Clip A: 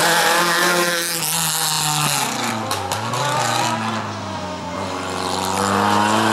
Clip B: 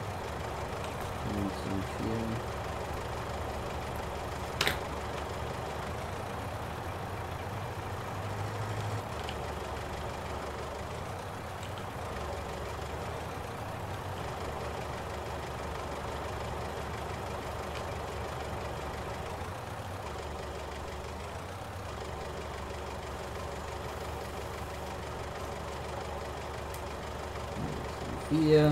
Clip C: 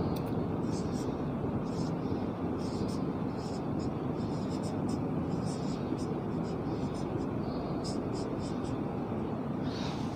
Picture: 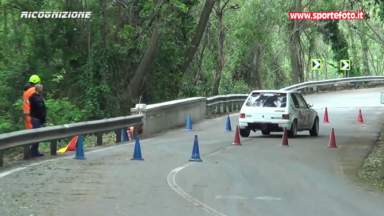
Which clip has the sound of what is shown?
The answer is A